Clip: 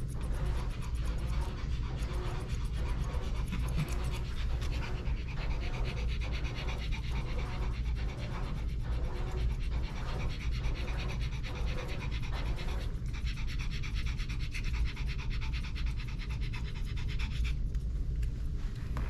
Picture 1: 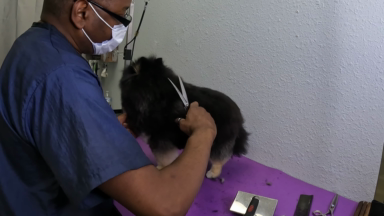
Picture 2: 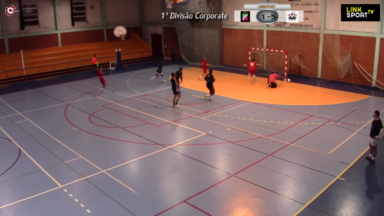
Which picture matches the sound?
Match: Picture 1